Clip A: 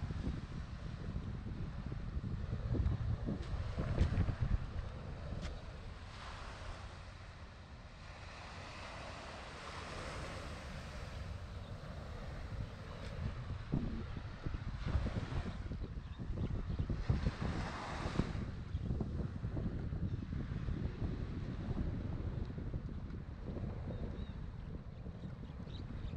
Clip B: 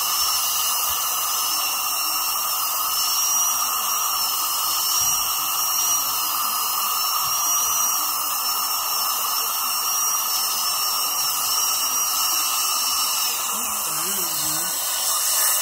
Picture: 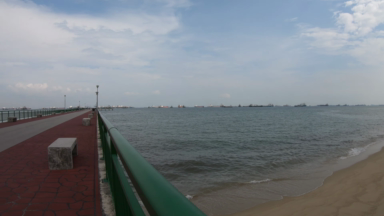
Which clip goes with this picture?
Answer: A